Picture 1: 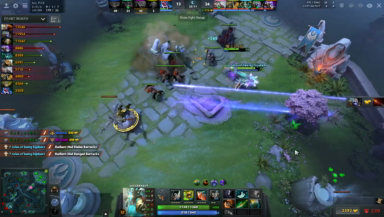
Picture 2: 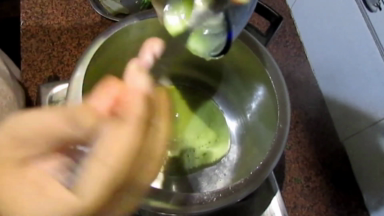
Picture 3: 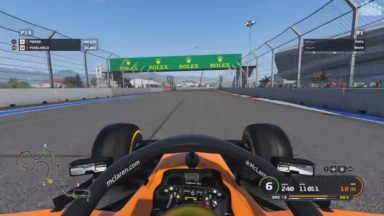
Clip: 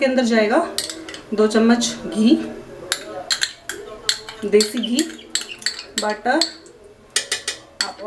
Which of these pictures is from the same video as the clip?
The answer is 2